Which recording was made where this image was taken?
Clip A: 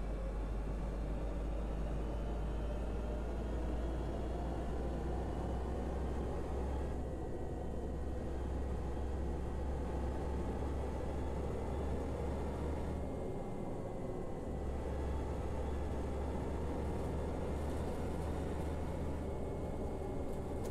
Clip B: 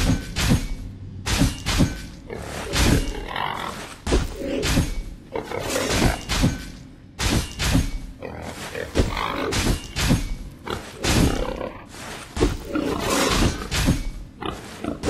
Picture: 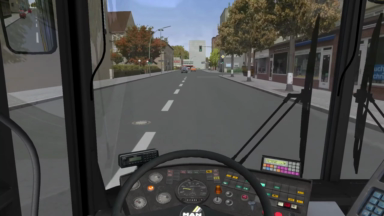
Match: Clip A